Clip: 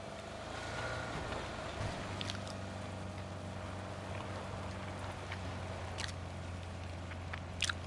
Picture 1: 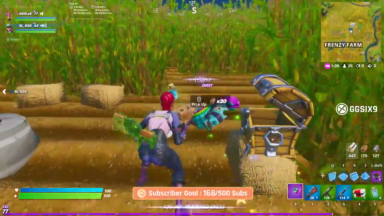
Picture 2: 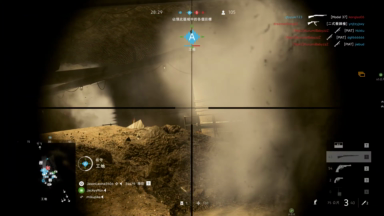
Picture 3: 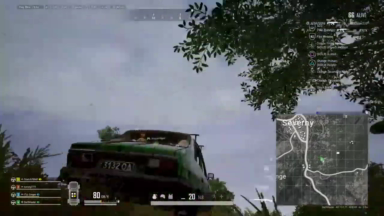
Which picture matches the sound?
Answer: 3